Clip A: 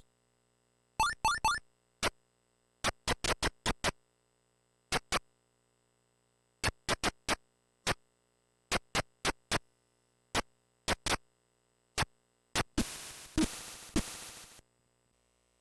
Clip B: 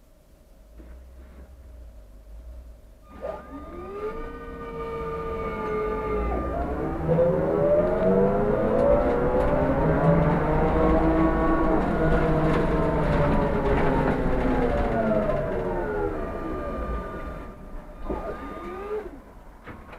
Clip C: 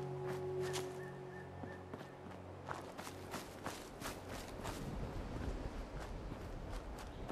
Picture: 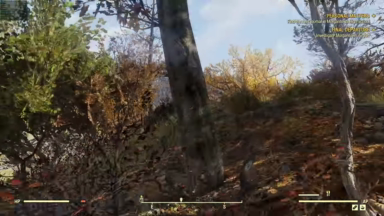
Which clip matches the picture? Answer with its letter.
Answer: C